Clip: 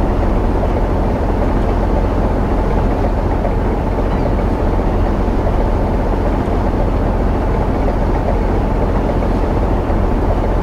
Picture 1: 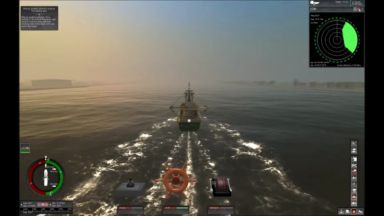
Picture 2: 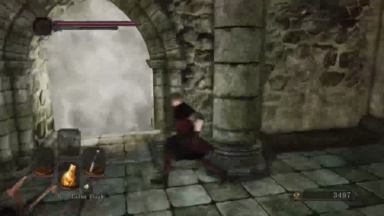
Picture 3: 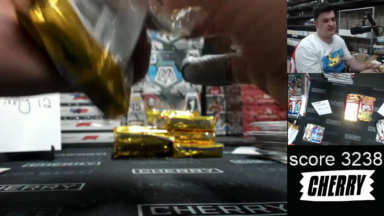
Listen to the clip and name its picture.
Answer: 1